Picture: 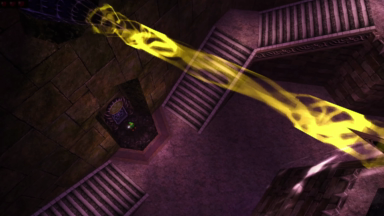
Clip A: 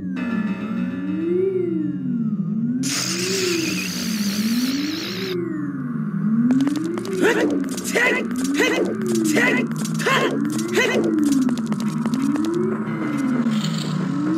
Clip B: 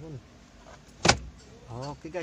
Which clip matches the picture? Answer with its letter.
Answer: A